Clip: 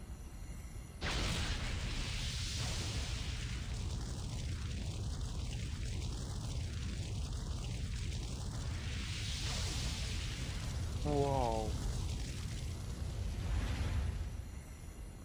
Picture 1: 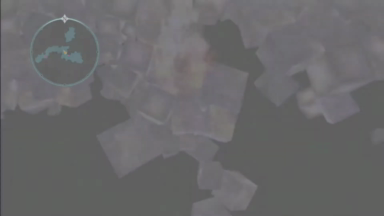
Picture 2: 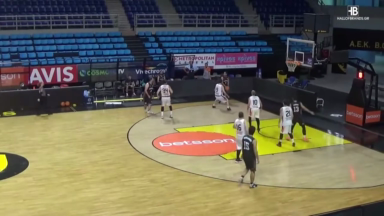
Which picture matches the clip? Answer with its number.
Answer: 1